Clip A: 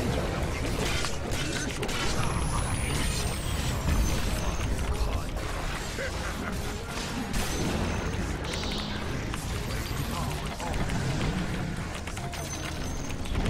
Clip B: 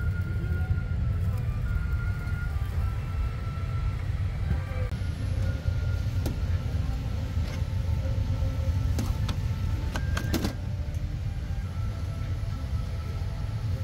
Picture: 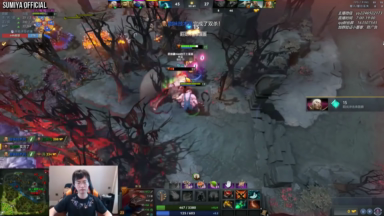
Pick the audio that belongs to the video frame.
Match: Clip A